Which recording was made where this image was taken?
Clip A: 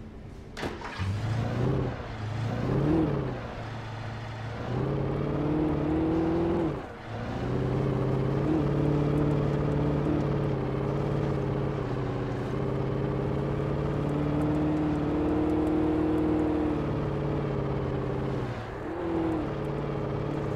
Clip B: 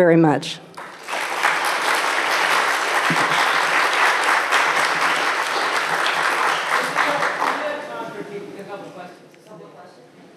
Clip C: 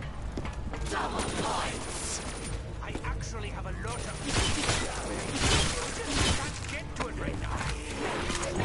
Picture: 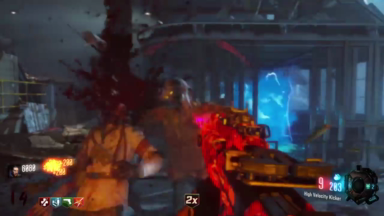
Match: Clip C